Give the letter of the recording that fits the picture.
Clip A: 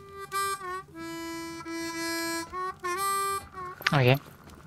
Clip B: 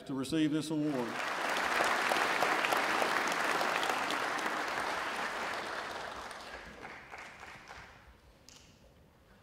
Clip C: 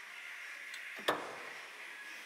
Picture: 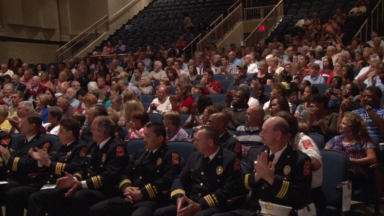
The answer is B